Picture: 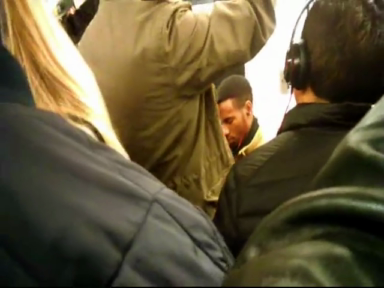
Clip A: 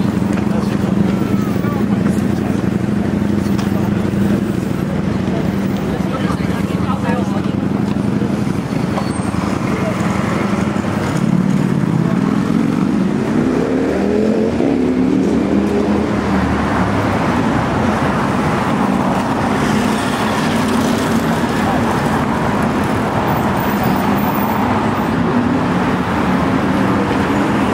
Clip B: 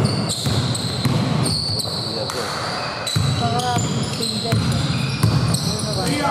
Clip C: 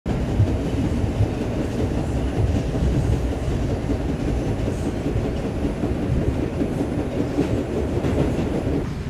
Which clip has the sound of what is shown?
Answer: C